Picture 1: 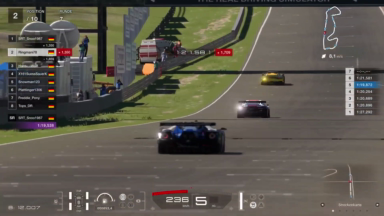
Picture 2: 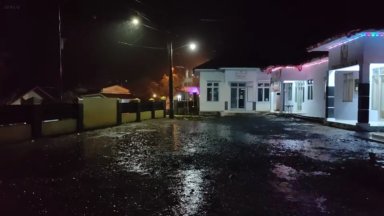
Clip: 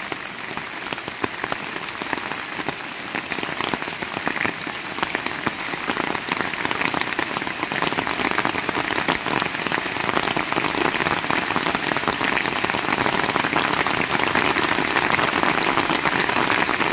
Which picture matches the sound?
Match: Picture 2